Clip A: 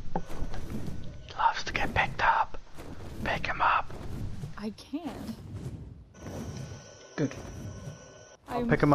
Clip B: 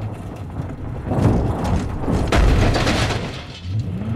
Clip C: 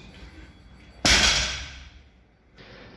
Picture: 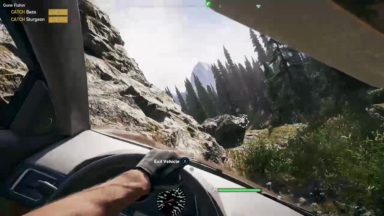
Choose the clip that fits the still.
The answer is B